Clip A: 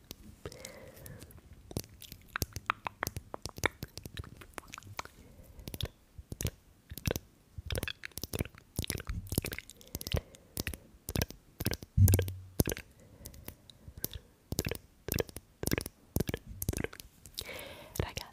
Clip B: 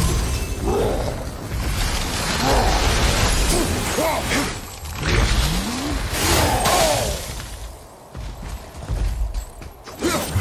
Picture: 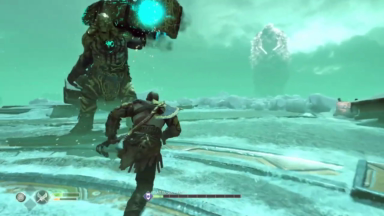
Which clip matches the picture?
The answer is B